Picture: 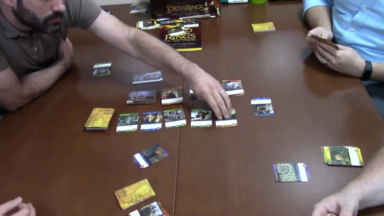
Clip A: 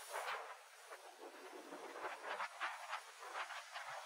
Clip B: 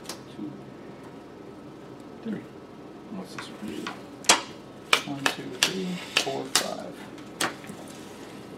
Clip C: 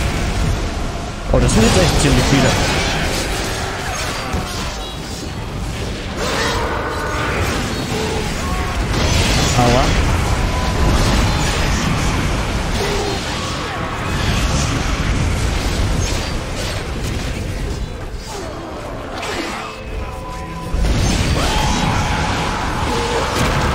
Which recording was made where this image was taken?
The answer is B